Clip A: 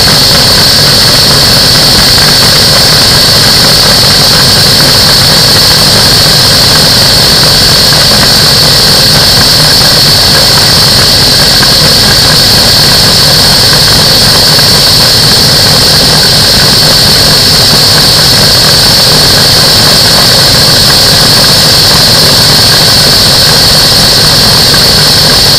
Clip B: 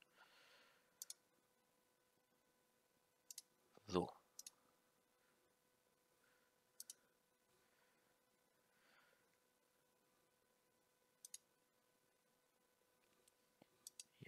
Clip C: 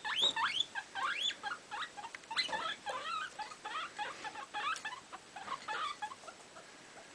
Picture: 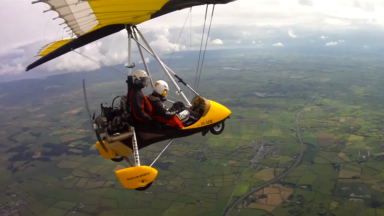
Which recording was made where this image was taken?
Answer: A